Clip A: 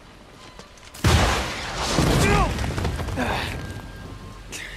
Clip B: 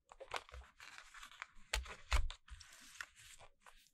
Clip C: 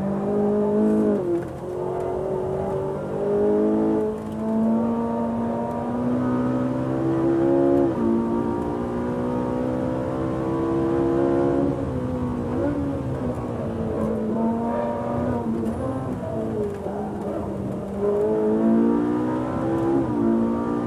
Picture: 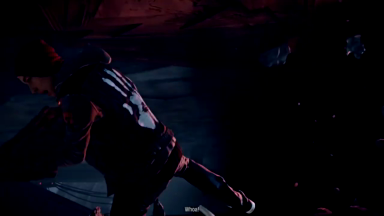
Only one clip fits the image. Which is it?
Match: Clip A